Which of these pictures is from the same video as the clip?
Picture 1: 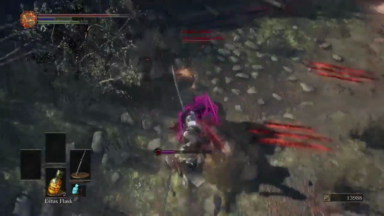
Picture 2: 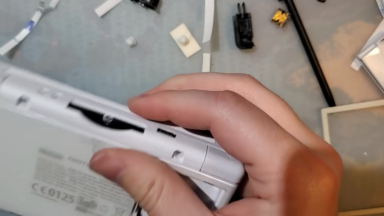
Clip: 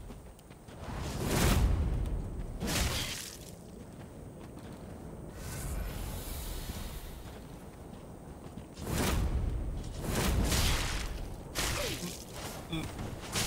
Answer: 1